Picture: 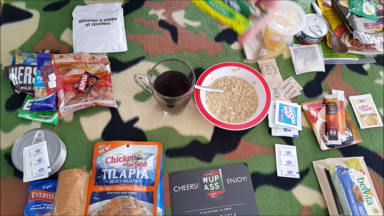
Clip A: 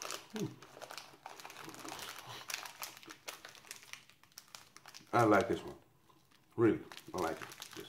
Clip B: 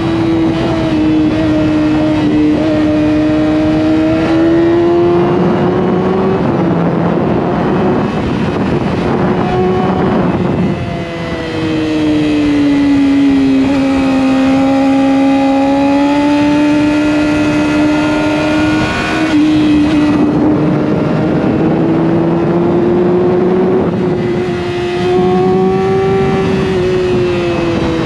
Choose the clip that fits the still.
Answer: A